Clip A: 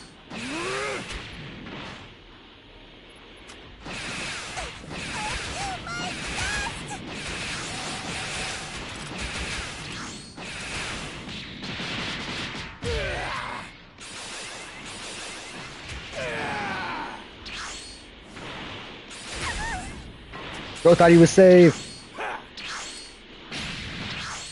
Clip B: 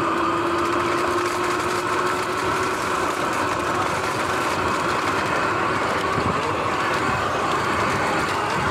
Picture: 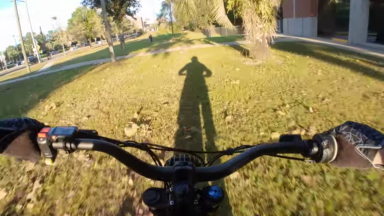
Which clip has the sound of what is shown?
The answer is B